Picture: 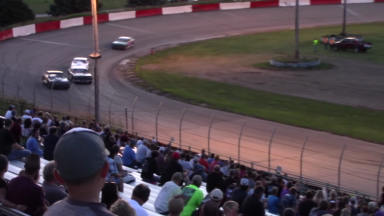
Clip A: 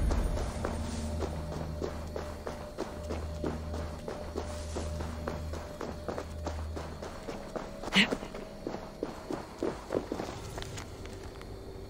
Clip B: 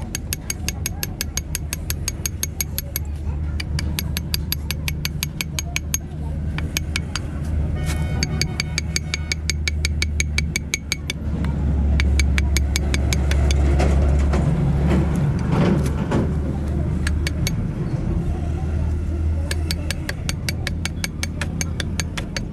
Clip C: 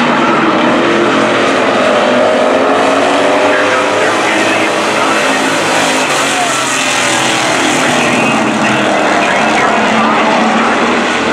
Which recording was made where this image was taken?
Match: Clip C